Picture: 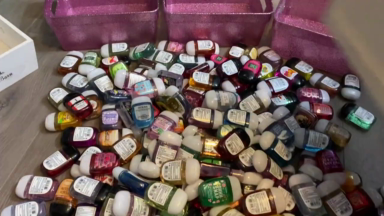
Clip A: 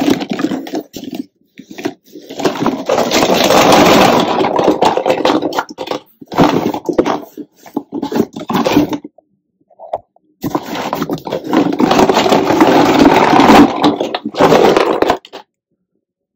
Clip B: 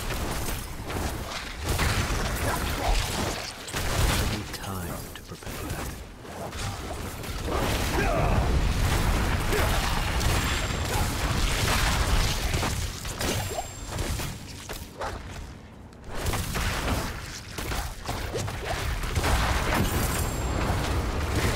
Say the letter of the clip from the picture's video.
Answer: A